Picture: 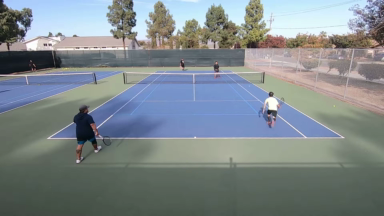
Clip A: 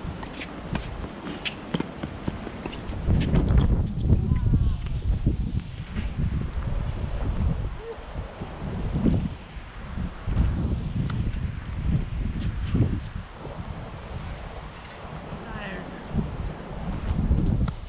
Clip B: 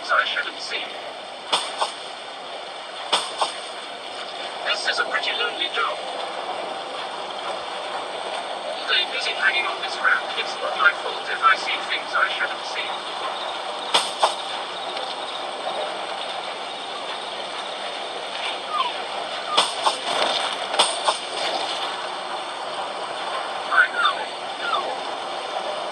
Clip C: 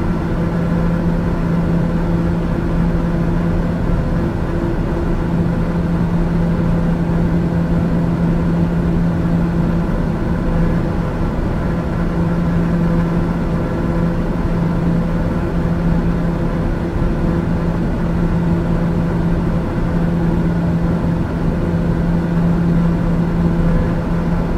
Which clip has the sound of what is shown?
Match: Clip A